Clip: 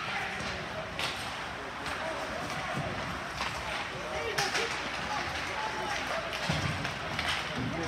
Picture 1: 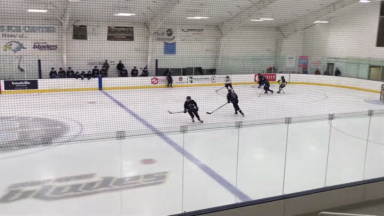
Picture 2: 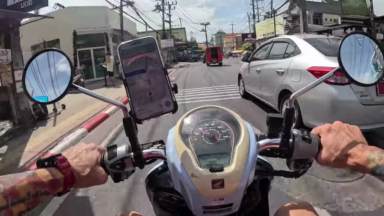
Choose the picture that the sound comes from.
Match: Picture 1